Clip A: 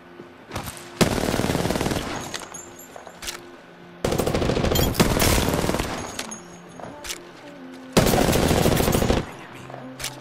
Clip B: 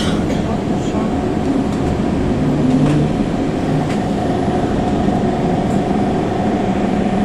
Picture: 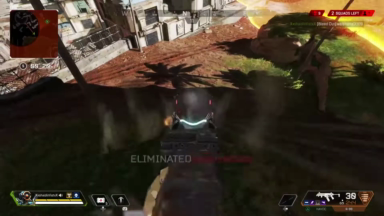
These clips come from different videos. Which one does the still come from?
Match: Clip A